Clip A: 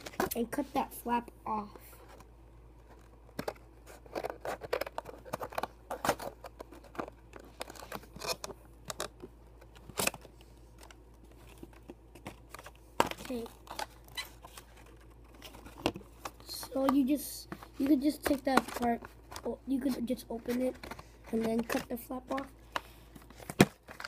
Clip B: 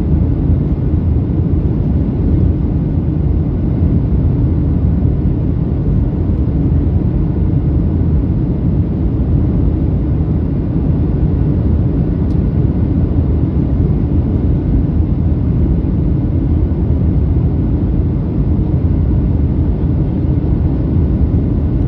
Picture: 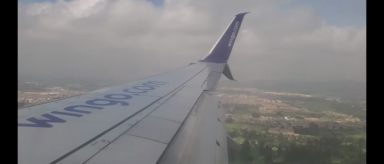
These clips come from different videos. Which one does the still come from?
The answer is B